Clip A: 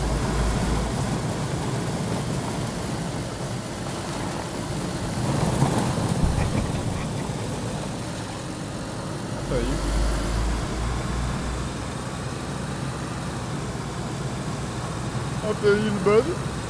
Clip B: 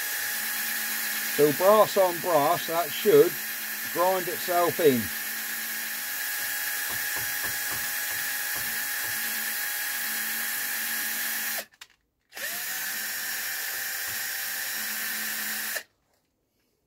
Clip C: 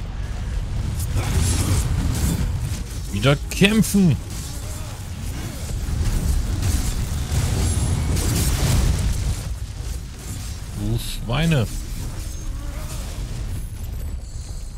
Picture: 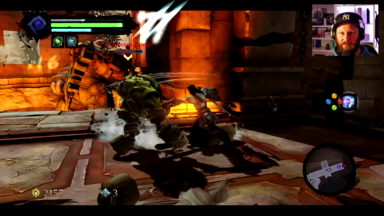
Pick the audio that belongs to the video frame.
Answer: C